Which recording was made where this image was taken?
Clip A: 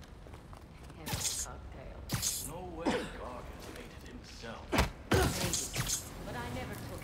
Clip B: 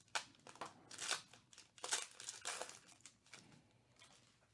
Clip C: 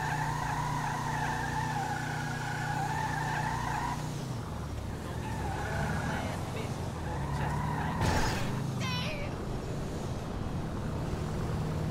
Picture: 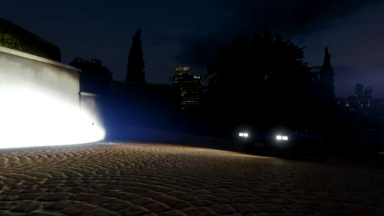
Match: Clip C